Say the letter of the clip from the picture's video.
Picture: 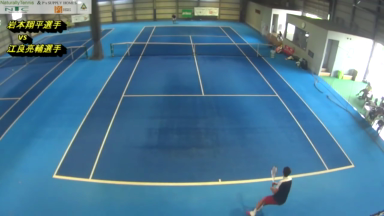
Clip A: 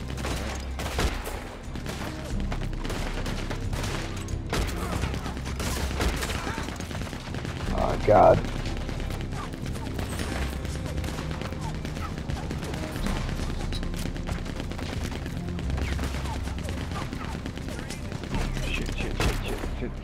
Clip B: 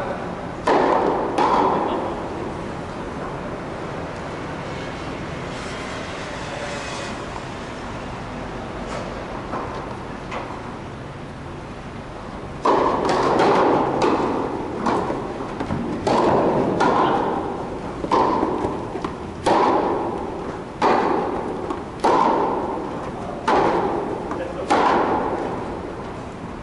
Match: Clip B